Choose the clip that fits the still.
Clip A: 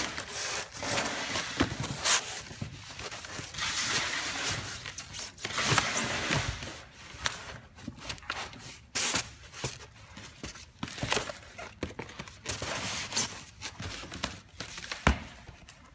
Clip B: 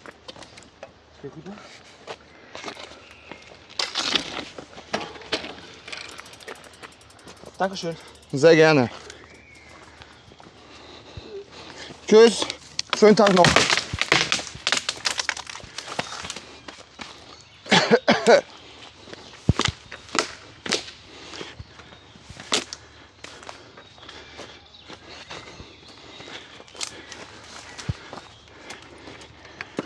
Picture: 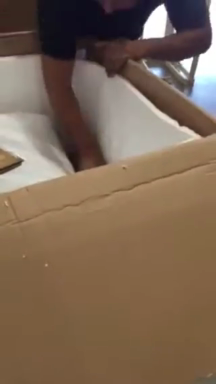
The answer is A